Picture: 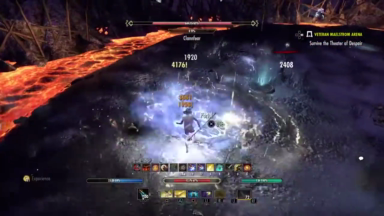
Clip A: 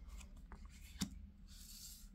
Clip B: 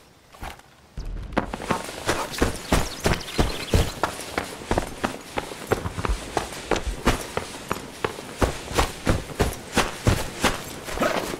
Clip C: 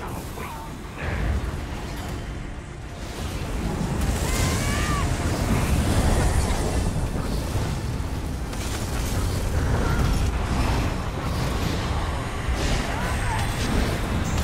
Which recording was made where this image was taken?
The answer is C